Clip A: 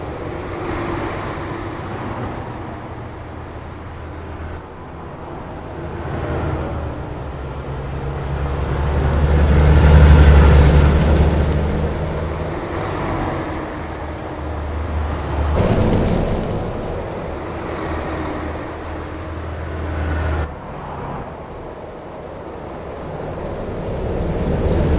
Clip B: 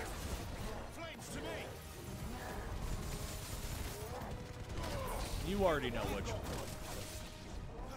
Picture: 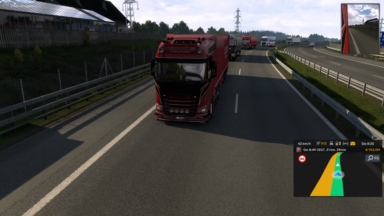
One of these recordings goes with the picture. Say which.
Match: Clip A